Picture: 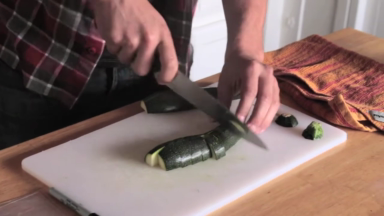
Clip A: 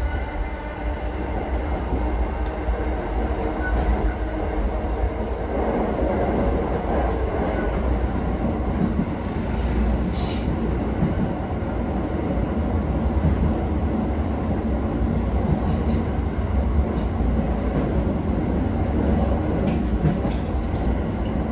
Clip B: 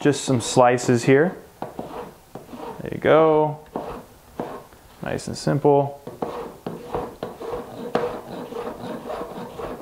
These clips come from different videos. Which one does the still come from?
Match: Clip B